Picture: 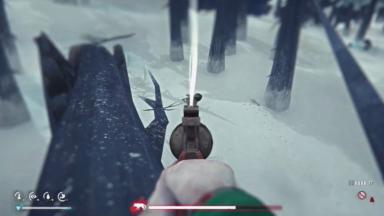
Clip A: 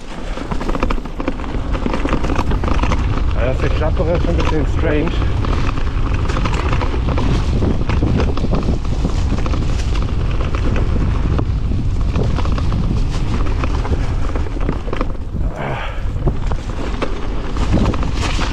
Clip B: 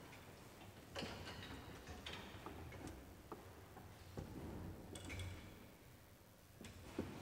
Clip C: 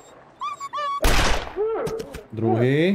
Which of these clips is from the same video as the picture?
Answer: C